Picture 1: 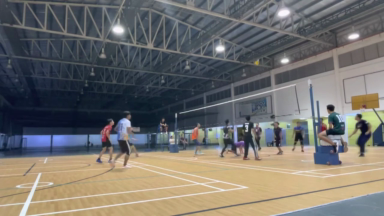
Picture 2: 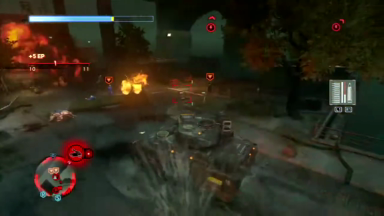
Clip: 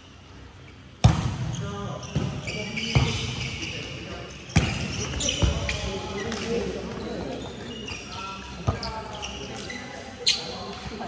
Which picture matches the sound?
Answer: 1